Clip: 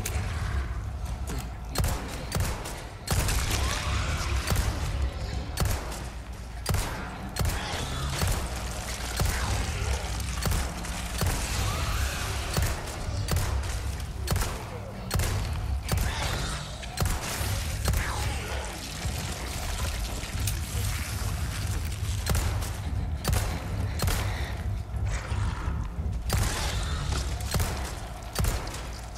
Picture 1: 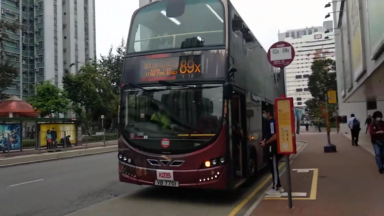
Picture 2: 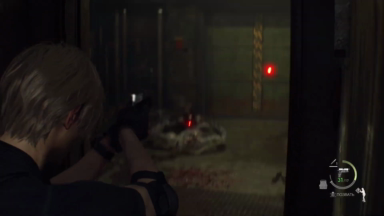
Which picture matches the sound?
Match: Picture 2